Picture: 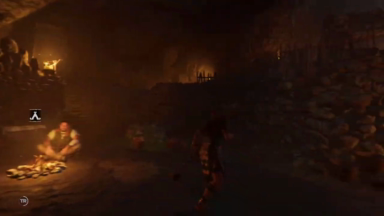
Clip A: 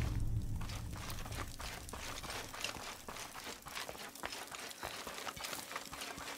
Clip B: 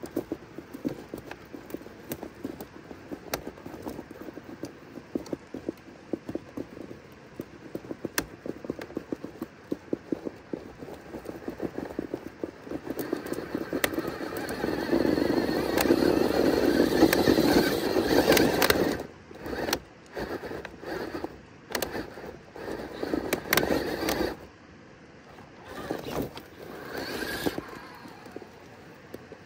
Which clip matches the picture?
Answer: A